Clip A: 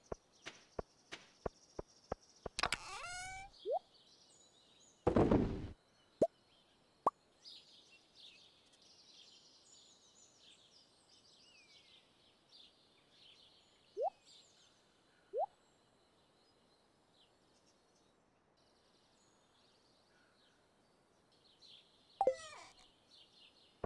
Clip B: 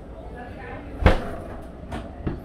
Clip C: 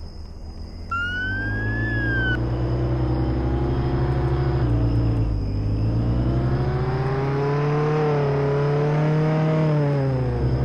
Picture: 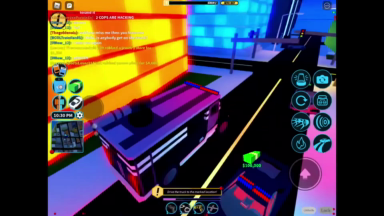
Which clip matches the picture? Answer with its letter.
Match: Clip C